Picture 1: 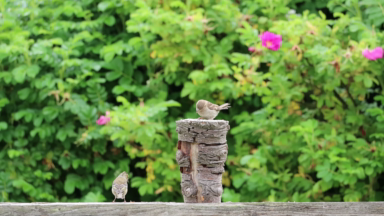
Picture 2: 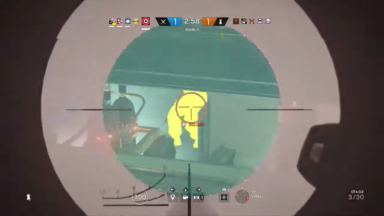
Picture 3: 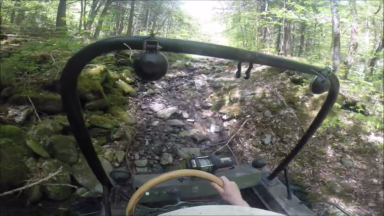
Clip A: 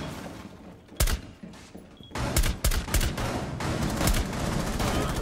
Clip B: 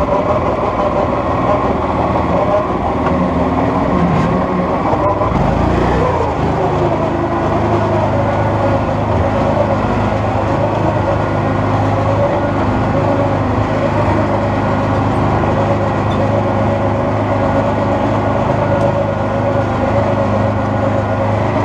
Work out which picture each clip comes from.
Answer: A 2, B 3